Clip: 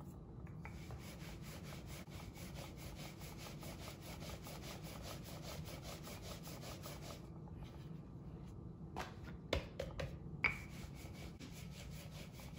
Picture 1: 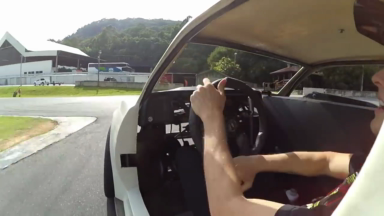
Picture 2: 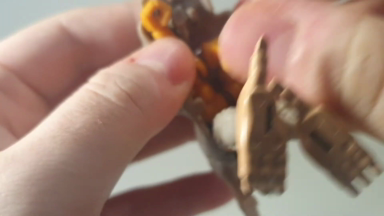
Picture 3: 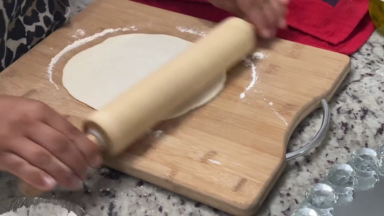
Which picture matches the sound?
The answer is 3